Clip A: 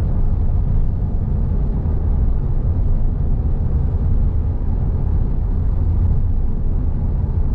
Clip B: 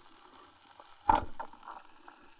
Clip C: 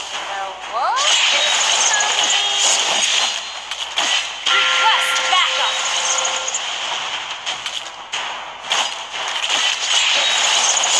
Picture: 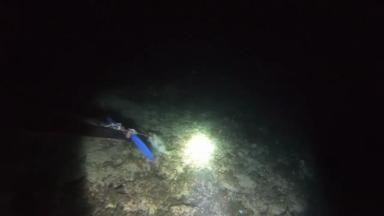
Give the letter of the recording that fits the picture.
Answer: B